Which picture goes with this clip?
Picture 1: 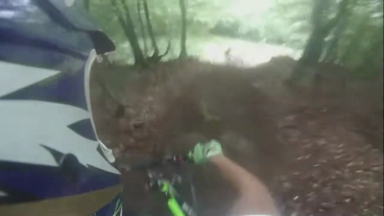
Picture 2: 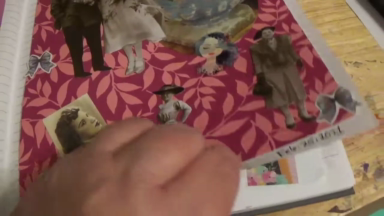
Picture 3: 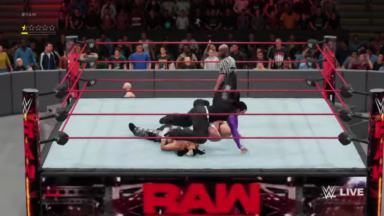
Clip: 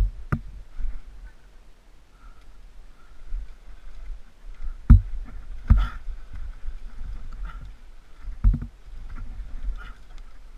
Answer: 1